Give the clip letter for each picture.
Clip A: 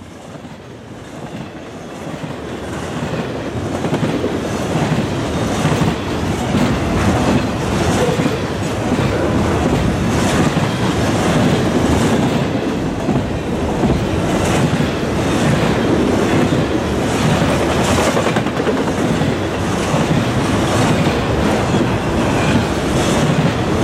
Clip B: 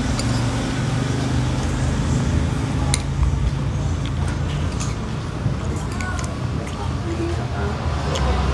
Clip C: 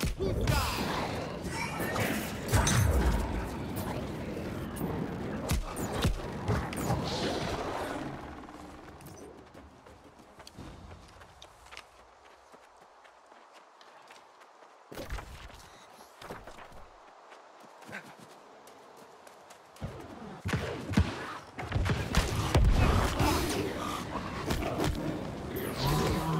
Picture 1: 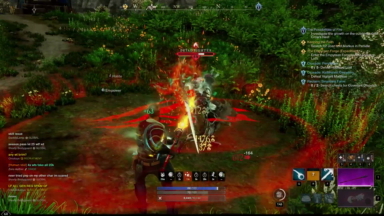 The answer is C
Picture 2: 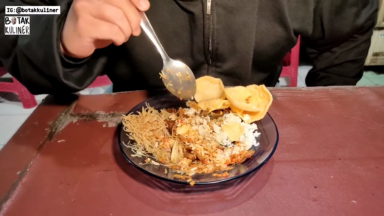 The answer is B